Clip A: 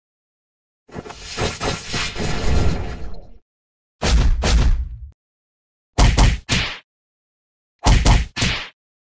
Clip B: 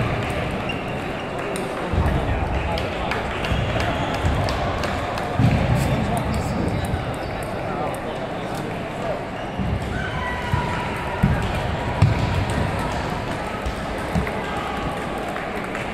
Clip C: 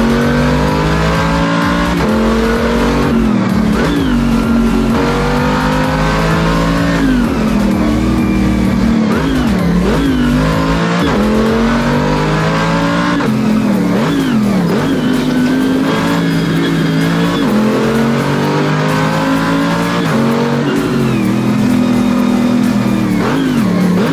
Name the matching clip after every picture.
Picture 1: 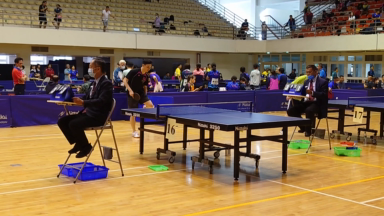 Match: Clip B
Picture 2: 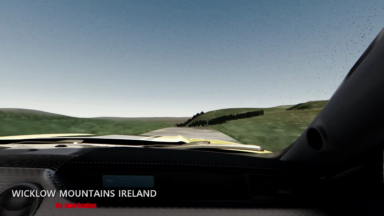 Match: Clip C